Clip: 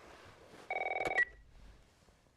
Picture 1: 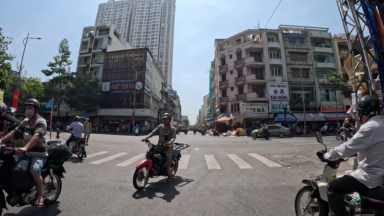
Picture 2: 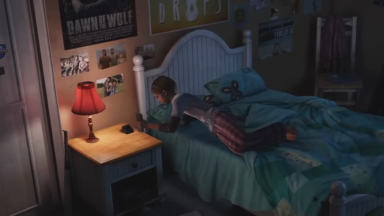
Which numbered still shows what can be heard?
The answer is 2